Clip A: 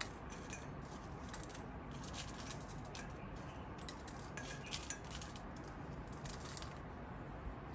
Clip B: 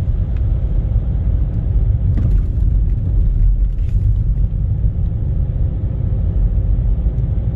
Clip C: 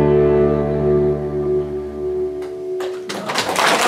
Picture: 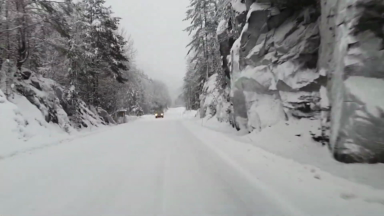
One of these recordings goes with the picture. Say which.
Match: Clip B